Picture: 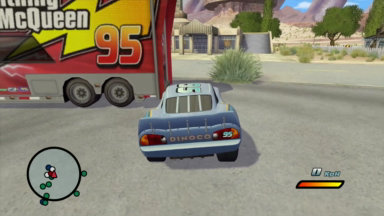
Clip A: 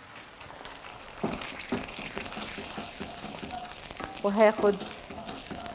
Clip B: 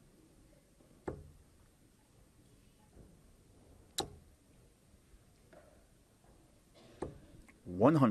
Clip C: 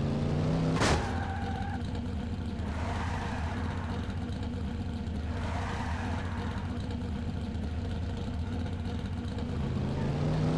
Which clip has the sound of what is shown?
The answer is C